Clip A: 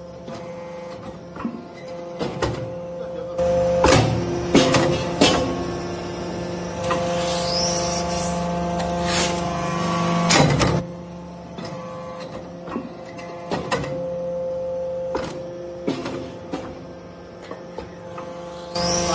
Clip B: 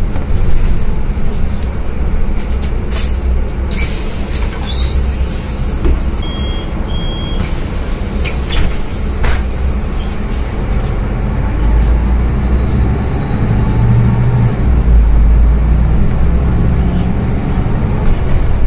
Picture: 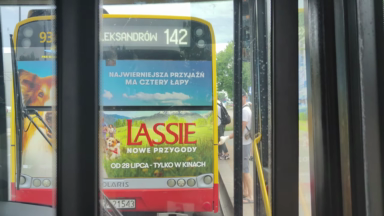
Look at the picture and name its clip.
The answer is B